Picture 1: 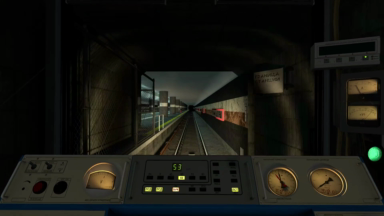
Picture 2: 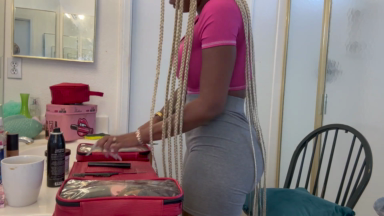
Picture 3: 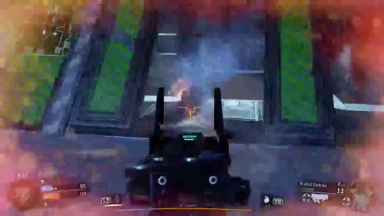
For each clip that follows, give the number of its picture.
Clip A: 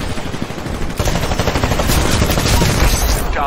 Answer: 3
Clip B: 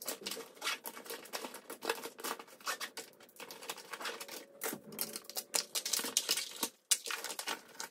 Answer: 2